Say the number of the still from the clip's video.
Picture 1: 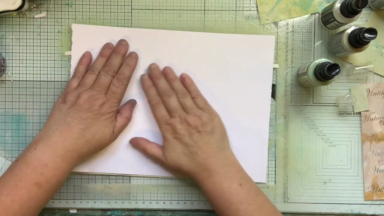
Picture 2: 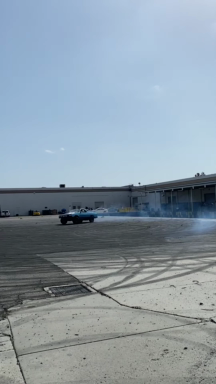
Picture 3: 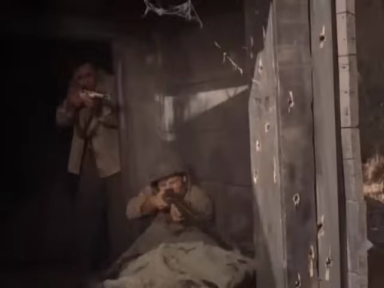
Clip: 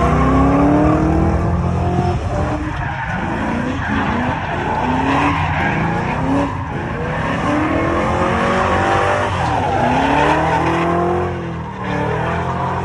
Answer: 2